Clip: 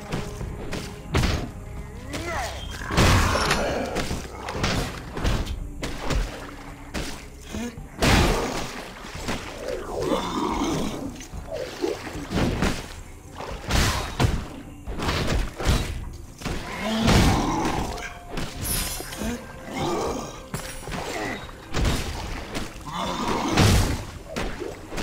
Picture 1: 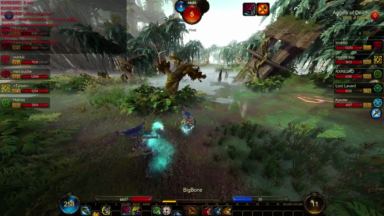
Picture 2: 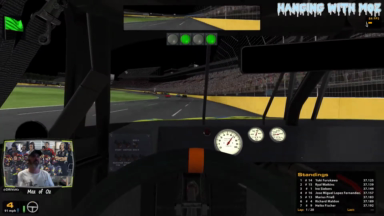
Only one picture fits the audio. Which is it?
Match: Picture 1